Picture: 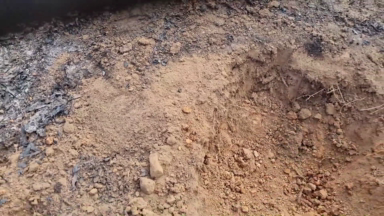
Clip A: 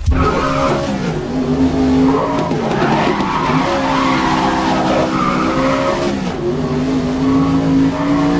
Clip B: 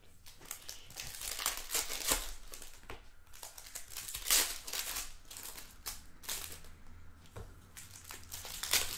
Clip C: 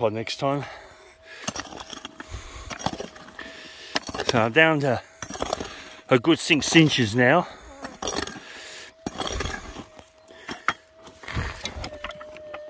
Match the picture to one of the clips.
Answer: C